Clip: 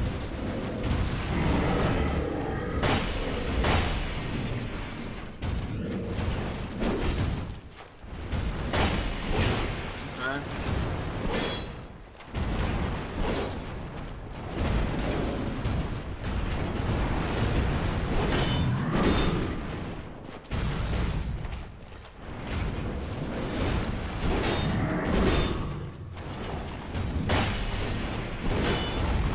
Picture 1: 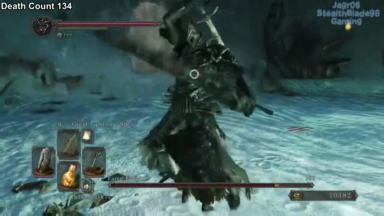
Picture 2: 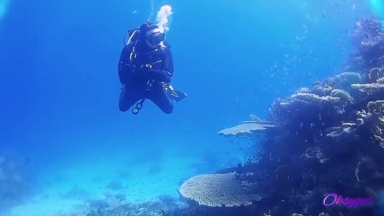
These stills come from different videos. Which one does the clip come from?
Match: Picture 1